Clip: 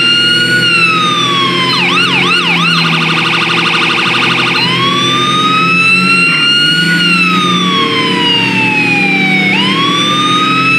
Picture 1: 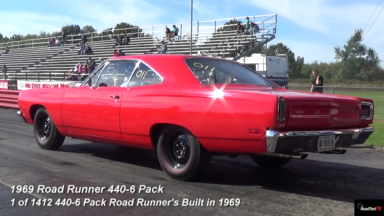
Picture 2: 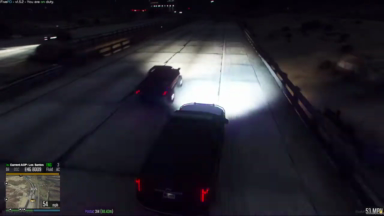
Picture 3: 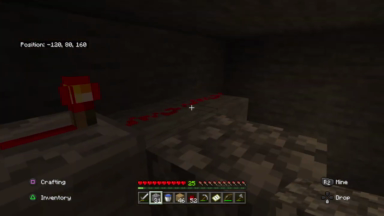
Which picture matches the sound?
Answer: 2